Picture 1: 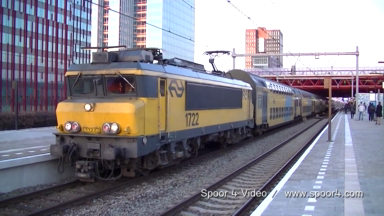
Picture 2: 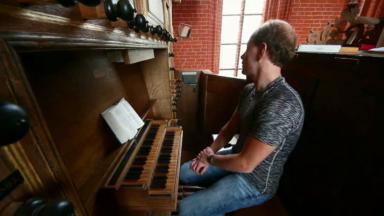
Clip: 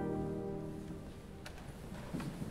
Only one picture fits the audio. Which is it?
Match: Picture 2